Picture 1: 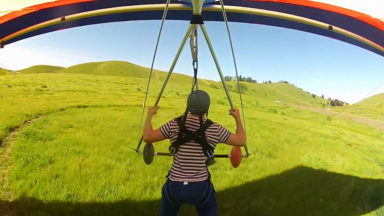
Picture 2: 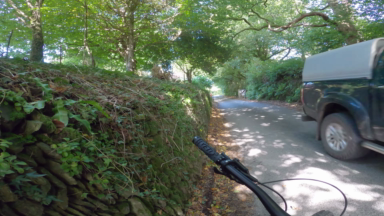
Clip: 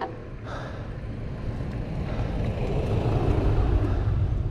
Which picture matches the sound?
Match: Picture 2